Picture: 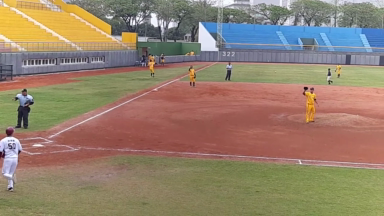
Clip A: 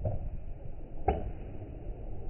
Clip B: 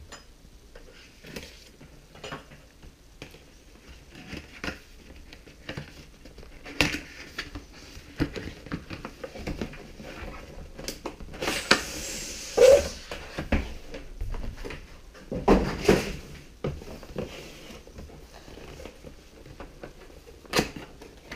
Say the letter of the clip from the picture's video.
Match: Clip A